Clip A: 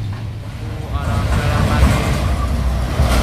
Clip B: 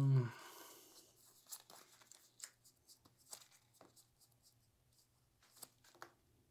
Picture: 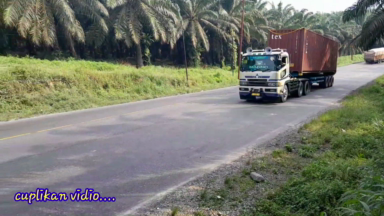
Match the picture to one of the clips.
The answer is A